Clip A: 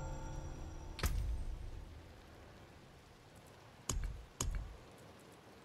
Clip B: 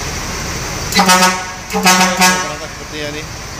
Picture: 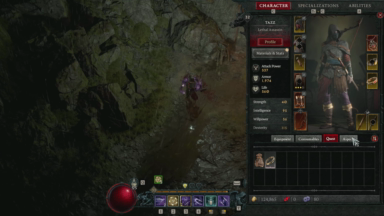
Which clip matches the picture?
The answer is A